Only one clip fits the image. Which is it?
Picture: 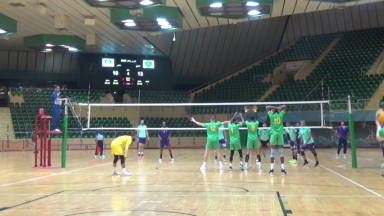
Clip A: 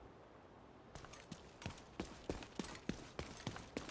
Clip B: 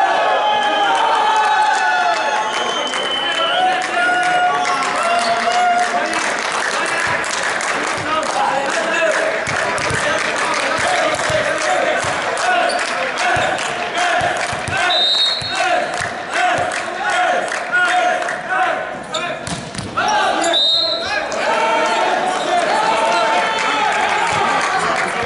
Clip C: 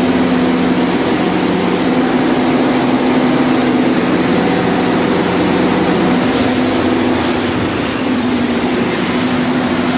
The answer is B